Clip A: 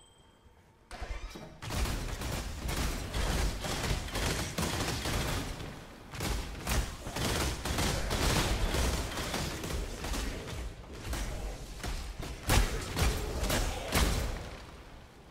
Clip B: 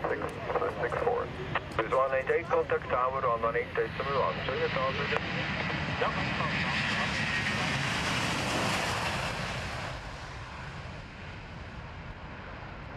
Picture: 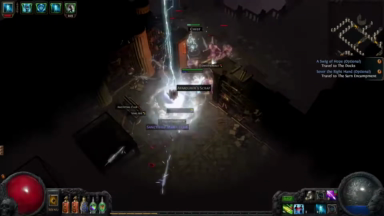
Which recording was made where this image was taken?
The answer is A